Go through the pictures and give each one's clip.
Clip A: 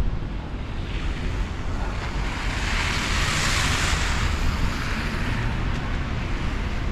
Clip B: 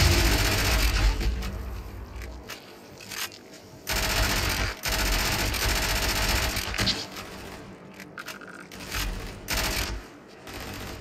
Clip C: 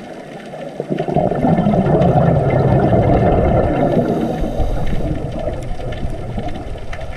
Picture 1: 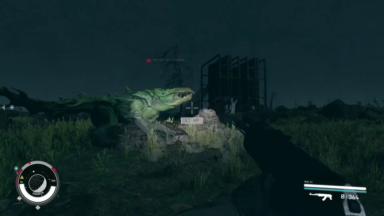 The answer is B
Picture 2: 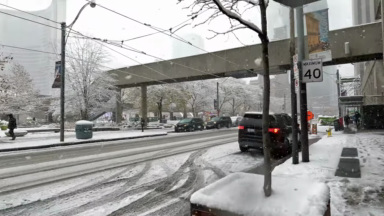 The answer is A